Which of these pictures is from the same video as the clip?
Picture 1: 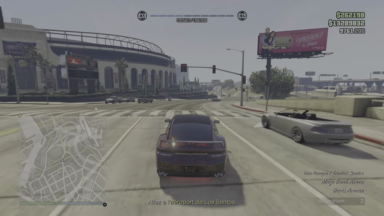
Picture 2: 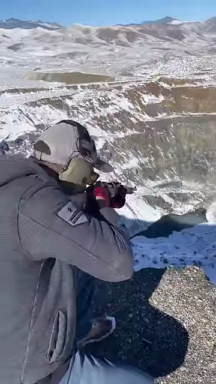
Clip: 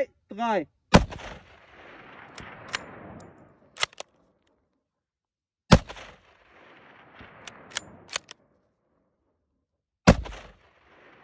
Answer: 2